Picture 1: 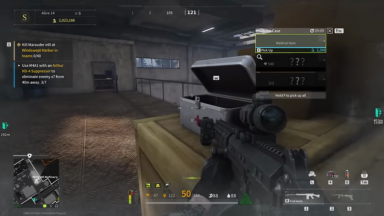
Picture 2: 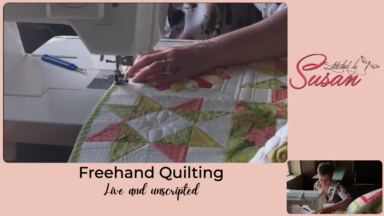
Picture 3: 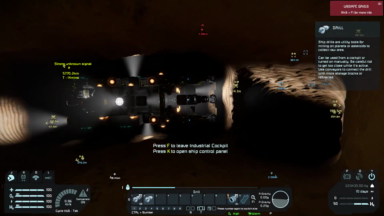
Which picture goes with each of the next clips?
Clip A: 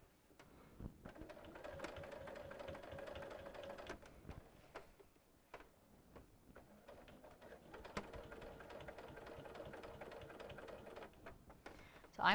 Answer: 2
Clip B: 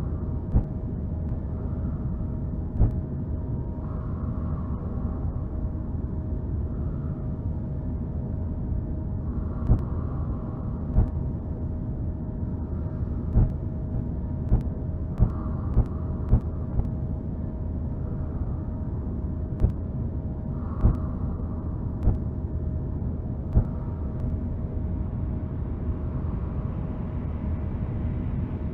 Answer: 3